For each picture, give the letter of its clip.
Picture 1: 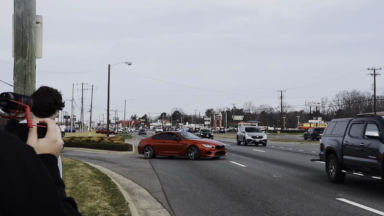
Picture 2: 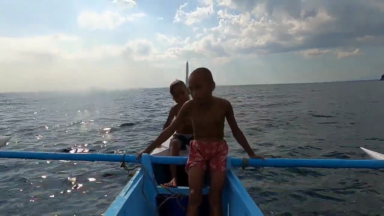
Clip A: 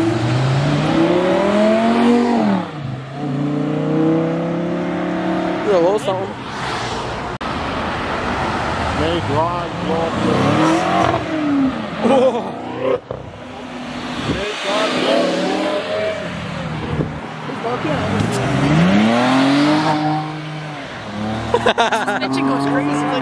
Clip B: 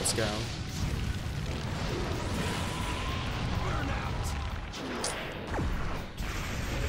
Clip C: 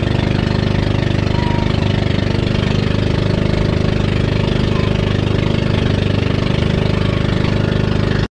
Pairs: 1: A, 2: C